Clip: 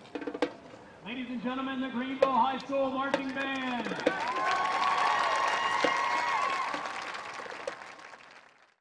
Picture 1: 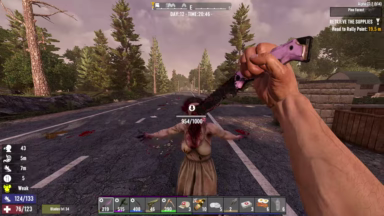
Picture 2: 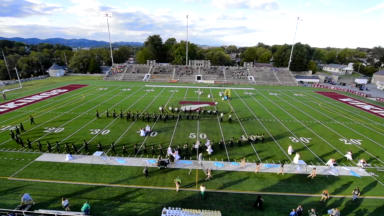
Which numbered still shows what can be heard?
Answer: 2